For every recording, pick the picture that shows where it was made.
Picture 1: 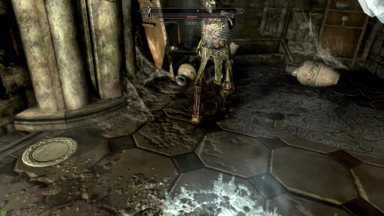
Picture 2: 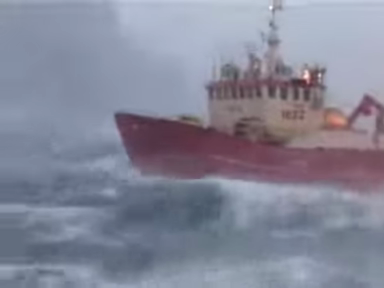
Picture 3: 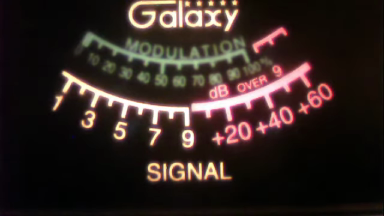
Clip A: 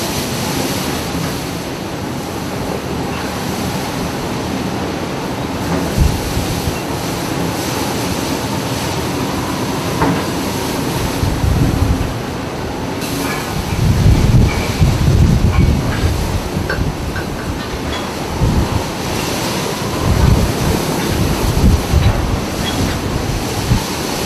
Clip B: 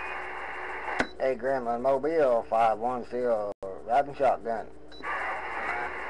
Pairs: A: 2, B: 3